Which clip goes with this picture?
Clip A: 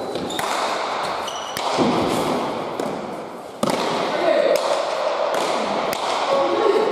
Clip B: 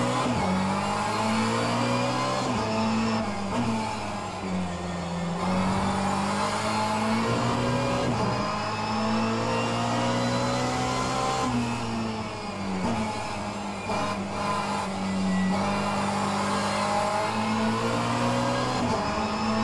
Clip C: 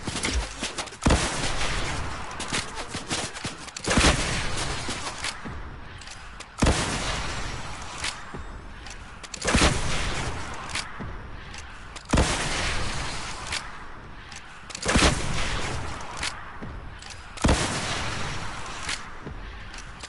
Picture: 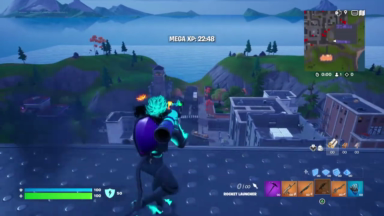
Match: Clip C